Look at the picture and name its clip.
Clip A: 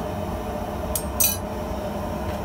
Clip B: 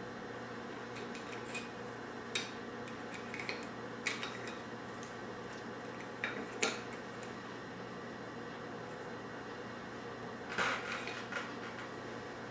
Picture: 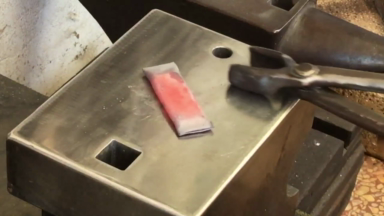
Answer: A